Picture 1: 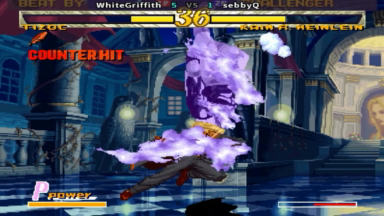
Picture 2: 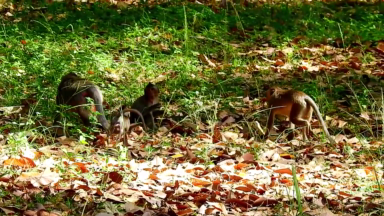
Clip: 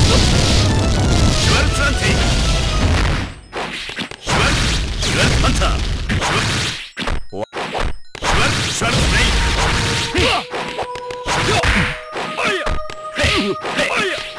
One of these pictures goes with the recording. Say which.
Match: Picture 1